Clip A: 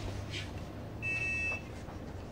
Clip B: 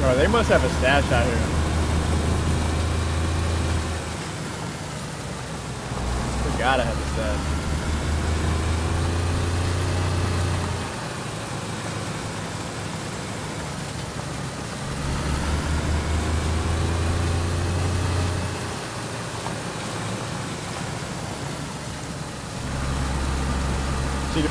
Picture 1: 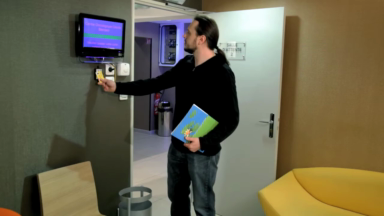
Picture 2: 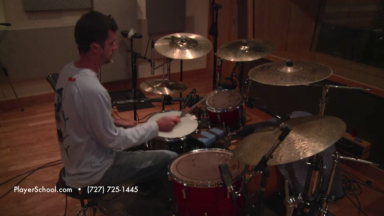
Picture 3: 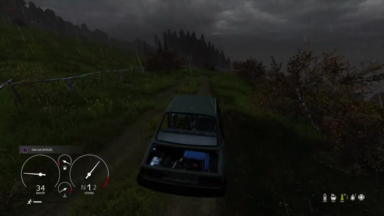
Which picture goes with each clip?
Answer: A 1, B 3